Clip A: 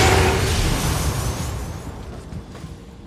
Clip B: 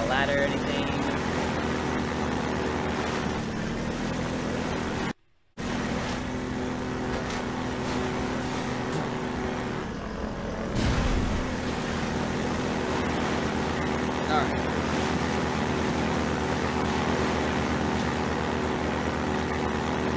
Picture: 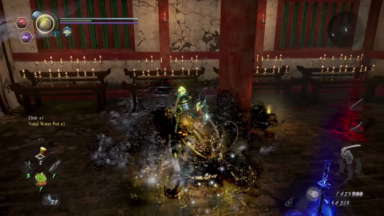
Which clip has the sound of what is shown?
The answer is A